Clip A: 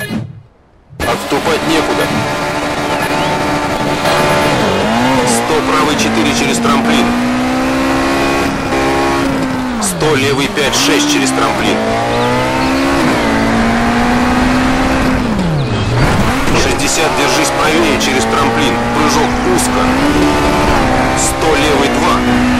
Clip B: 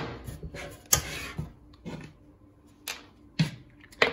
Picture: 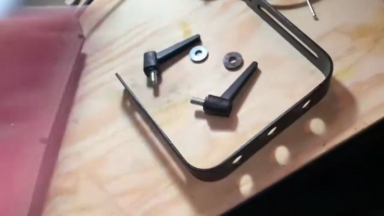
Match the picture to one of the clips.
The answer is B